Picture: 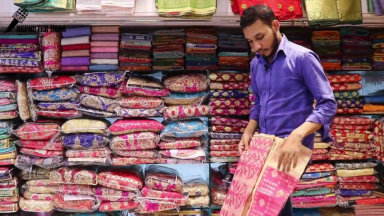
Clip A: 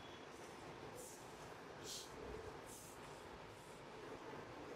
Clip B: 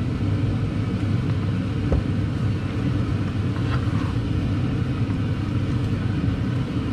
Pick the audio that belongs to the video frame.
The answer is A